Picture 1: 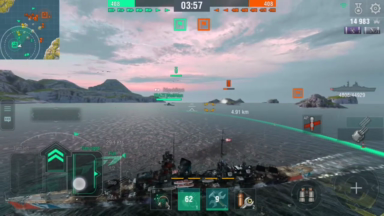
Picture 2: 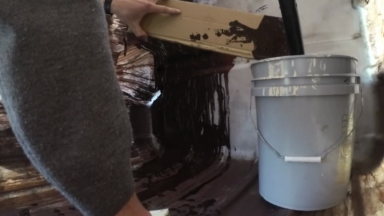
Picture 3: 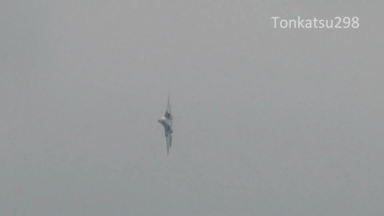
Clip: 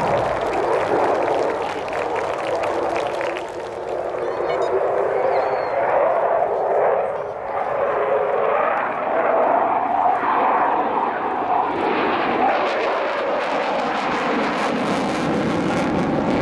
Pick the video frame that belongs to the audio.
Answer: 3